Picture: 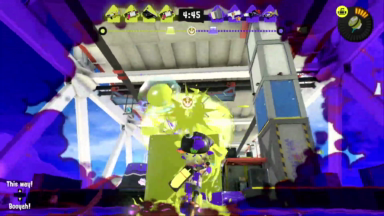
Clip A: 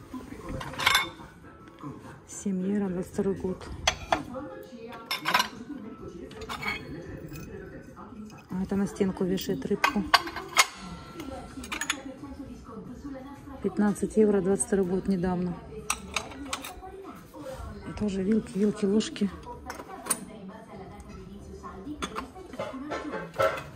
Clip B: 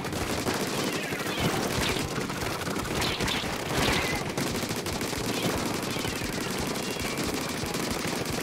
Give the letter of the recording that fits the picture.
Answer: B